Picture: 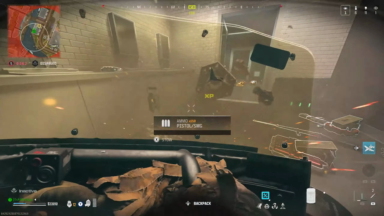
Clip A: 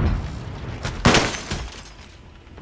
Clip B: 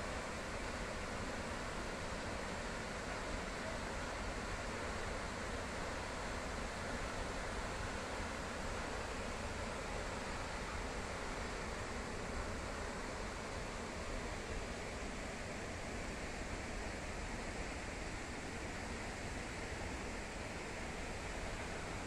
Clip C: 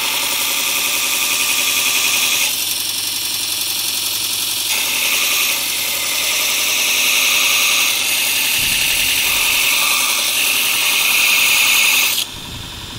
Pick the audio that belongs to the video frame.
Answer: A